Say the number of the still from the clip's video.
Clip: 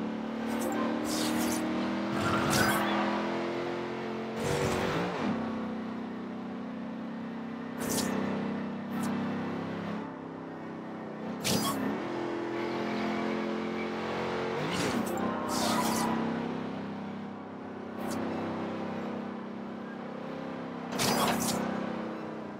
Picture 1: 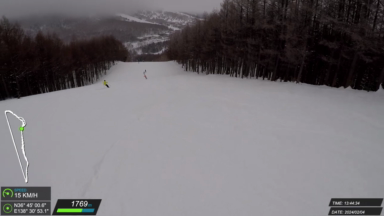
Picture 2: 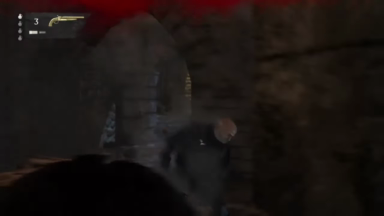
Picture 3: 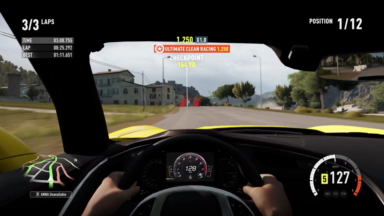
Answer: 3